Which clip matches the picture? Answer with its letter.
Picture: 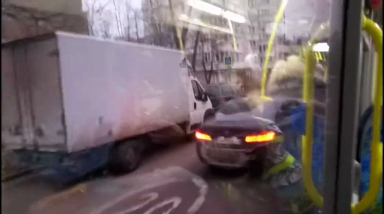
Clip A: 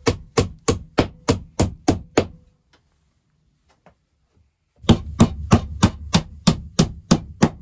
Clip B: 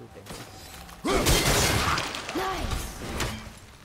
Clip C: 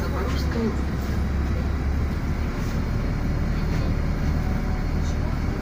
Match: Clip C